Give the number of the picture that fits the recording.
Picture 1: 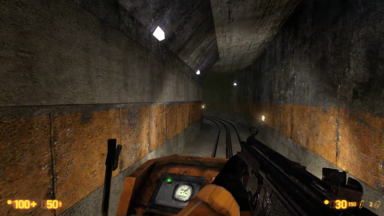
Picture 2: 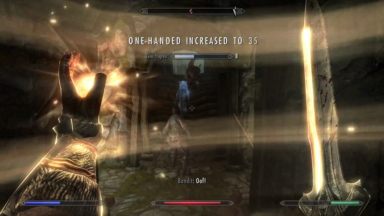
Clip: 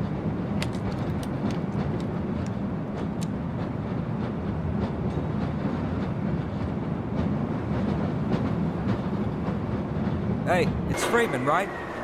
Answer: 1